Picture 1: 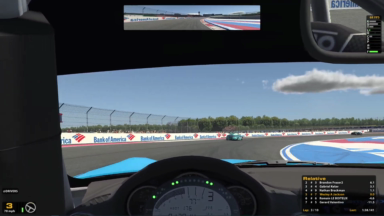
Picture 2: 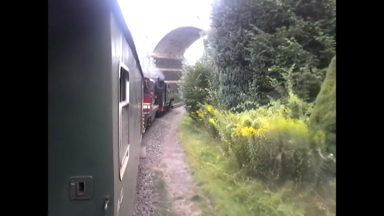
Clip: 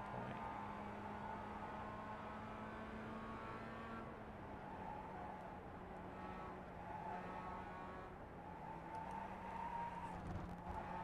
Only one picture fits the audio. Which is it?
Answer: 1